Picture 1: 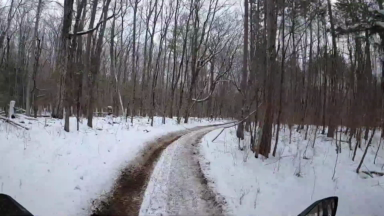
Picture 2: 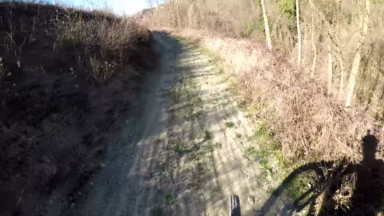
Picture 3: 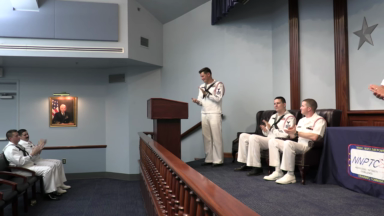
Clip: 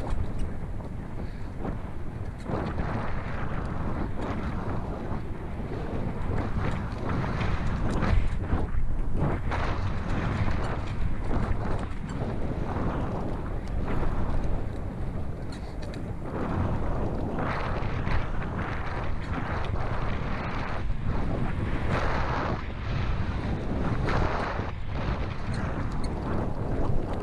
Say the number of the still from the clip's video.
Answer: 2